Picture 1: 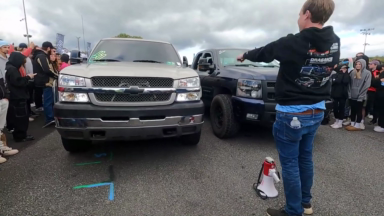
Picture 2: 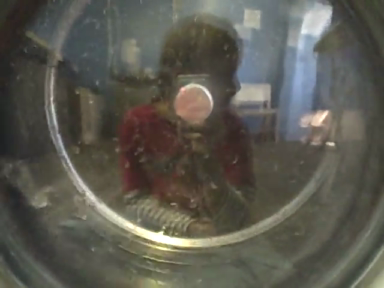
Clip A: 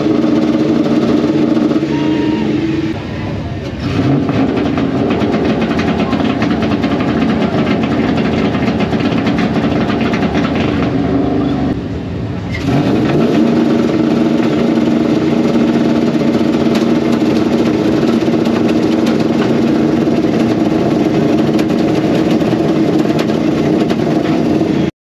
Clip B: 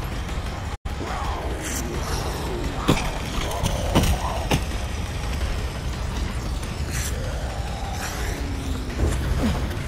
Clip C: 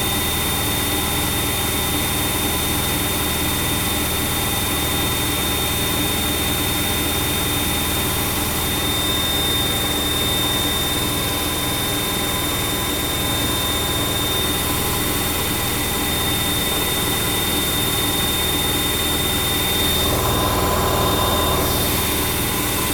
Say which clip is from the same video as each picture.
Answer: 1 A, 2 C